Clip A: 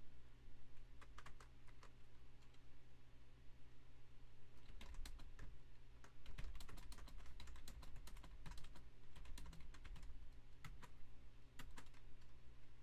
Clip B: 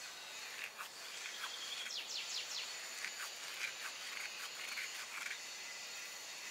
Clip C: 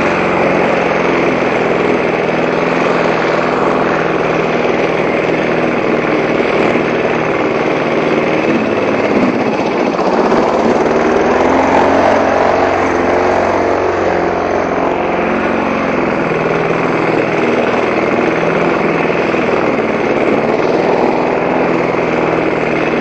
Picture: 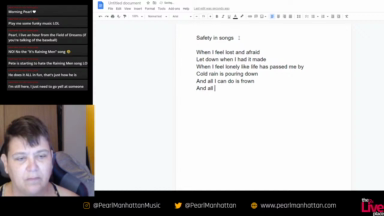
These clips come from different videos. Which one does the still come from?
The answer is A